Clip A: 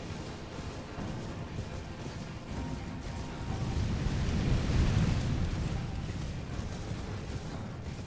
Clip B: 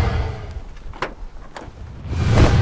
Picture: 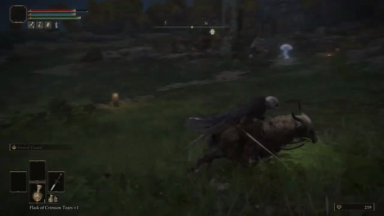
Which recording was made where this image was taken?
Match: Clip A